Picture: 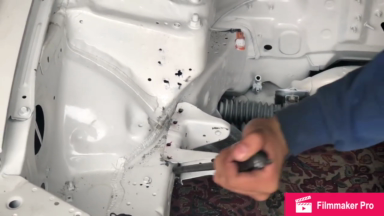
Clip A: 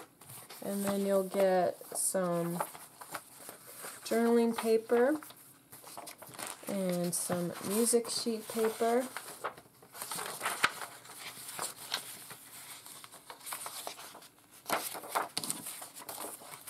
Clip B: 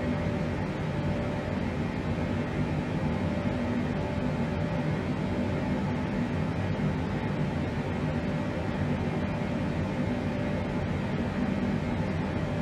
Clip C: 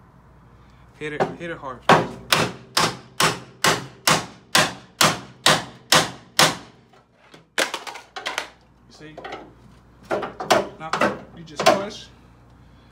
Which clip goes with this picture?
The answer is C